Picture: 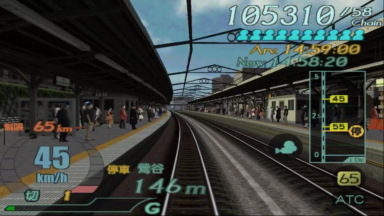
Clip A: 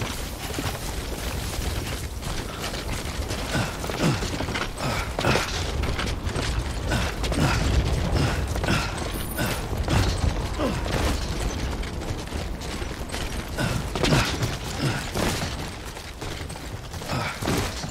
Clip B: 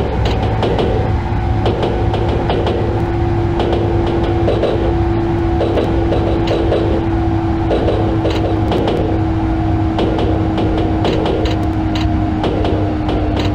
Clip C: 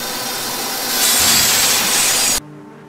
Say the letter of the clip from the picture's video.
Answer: B